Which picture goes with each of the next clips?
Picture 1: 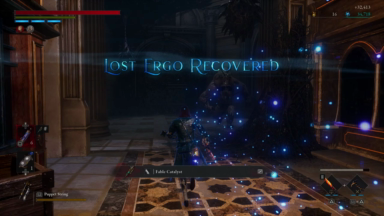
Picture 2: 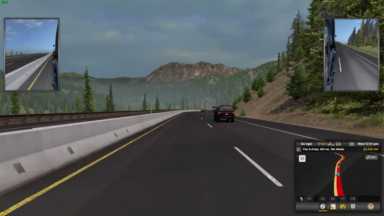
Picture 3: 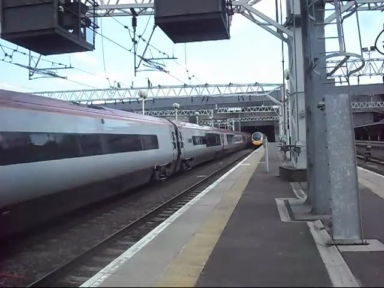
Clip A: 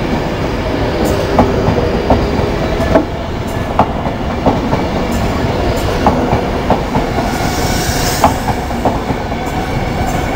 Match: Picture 3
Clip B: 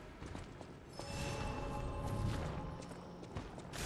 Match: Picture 1